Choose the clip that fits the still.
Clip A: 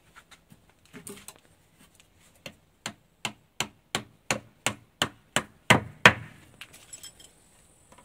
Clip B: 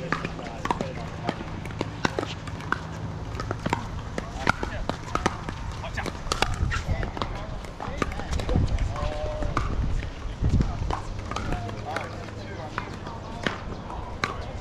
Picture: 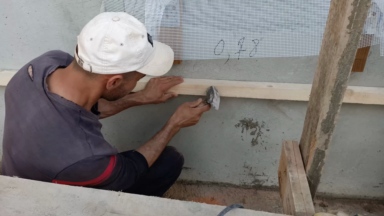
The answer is A